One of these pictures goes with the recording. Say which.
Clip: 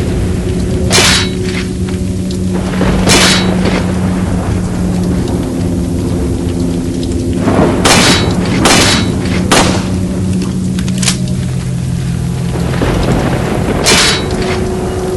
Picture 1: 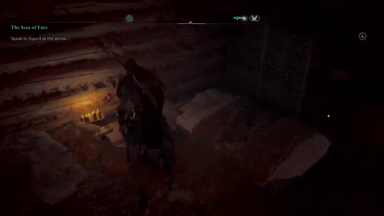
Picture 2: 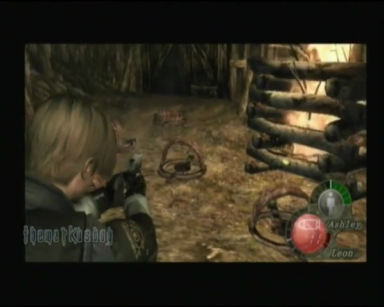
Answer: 2